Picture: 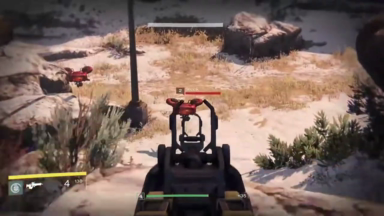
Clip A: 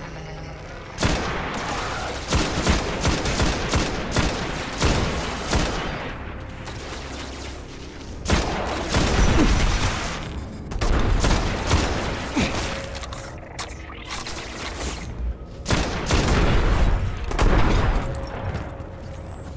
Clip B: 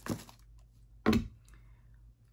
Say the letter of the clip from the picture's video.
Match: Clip A